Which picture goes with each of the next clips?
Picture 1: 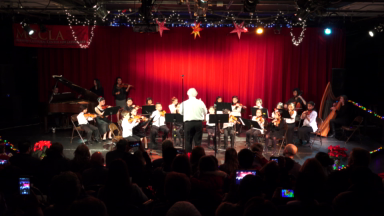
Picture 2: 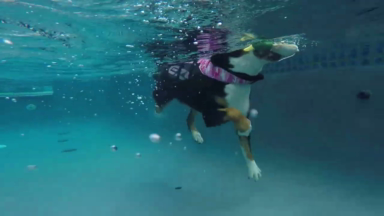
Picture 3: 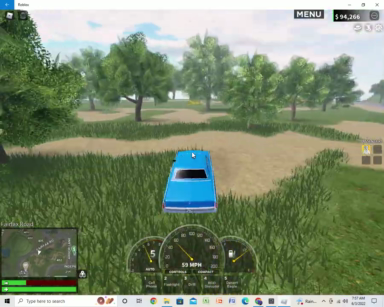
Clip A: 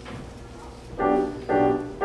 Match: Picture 1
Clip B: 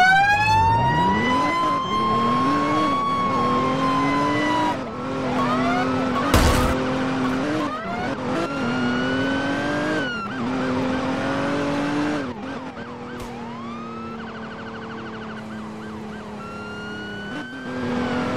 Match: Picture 3